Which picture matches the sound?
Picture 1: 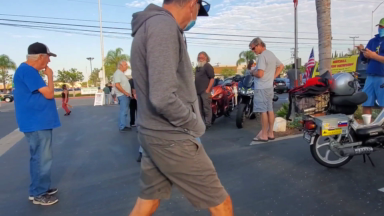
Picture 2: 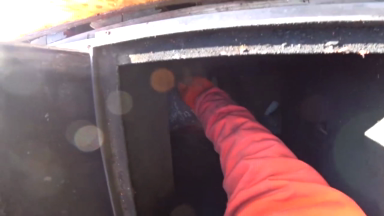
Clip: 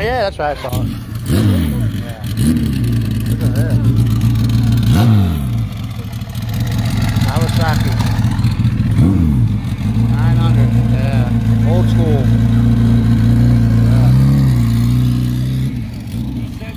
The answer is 1